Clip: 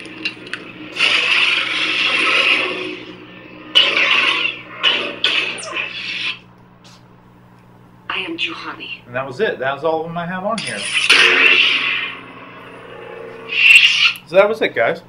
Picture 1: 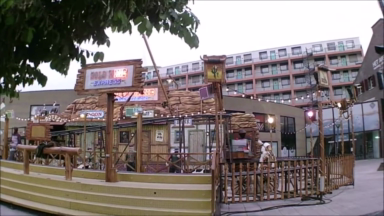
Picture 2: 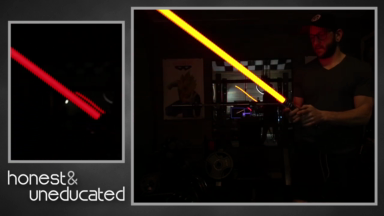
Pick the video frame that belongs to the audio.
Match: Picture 2